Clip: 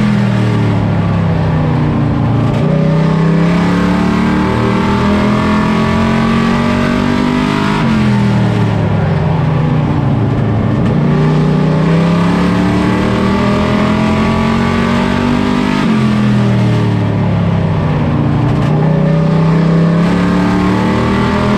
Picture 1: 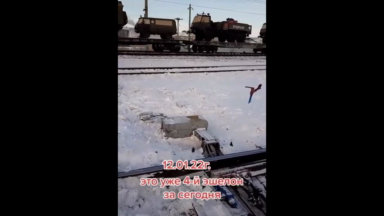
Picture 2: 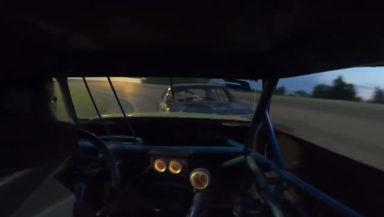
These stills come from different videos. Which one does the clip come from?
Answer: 2